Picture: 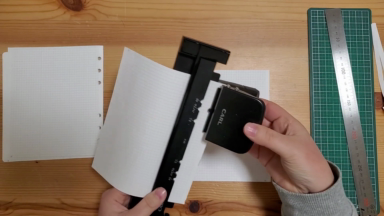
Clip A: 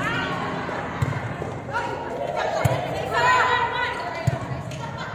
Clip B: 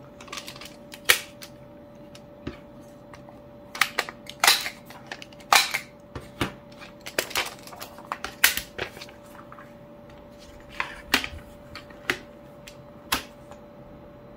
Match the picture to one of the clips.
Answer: B